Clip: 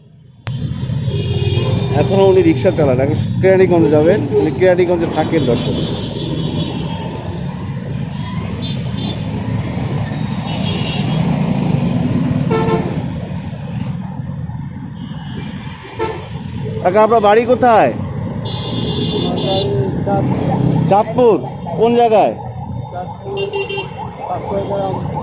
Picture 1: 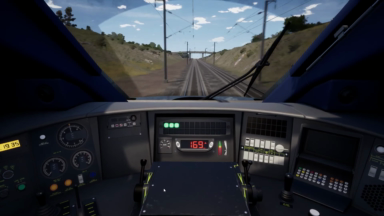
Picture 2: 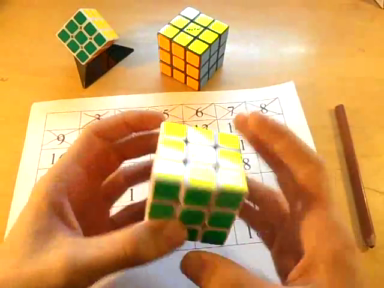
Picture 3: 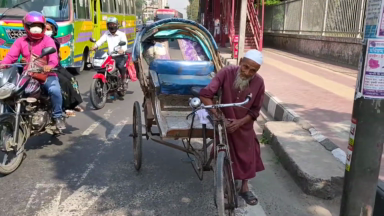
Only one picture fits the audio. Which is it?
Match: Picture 3